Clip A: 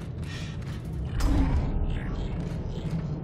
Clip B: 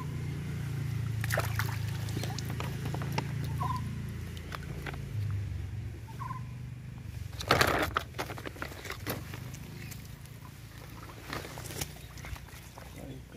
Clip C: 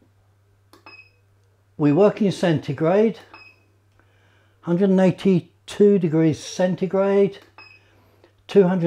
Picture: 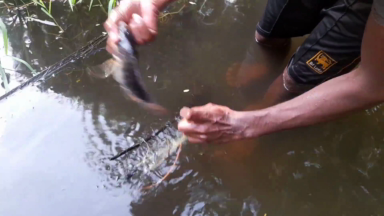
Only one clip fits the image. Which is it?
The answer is B